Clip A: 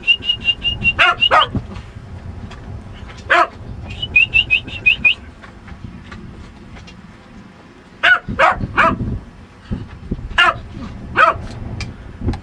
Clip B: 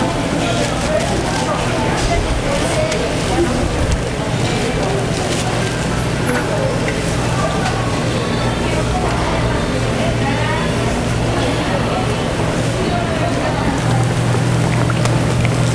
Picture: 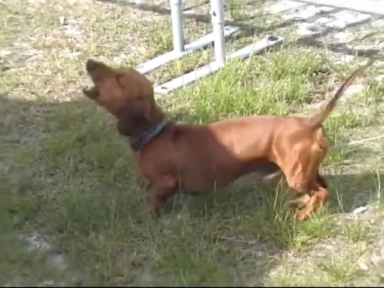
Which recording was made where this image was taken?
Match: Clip A